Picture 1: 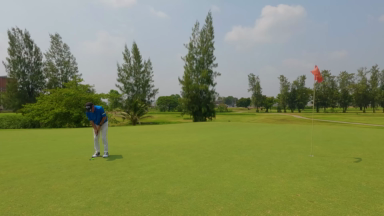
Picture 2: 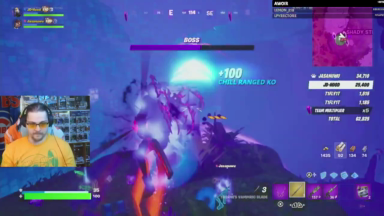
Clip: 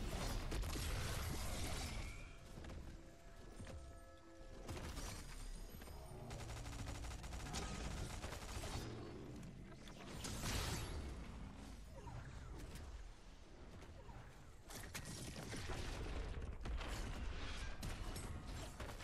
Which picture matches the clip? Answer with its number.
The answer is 2